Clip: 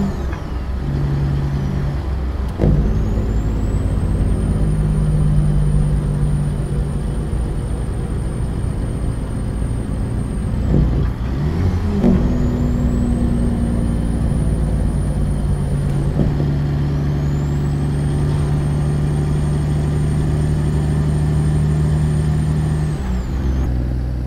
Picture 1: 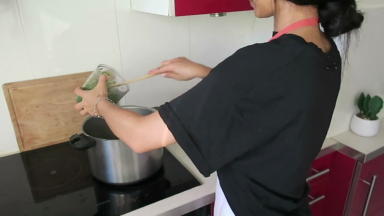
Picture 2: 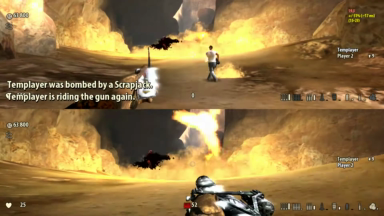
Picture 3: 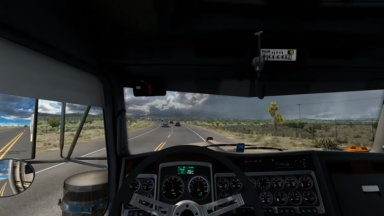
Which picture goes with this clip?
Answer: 3